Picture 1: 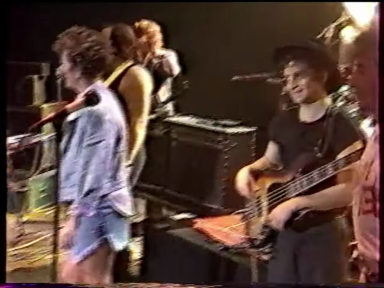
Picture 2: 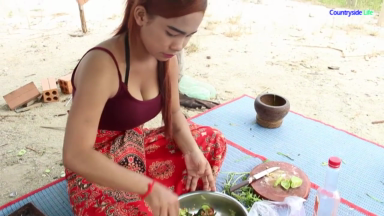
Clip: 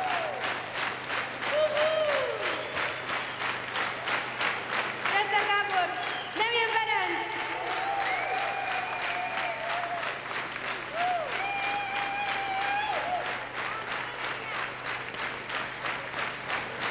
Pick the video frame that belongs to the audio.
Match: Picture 1